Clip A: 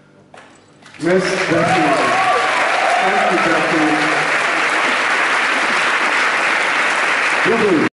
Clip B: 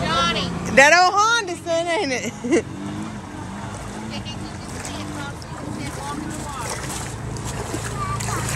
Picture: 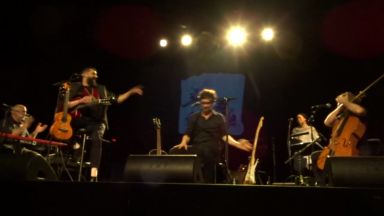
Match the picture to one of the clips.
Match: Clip A